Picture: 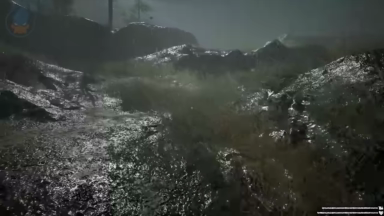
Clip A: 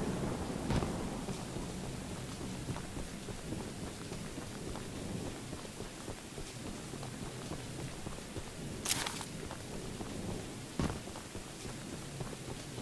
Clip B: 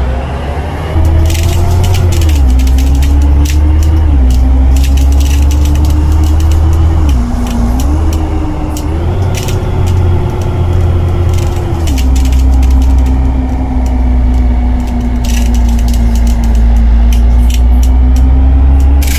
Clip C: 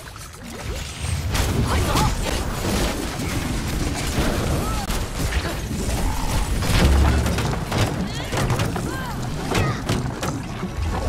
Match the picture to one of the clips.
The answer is A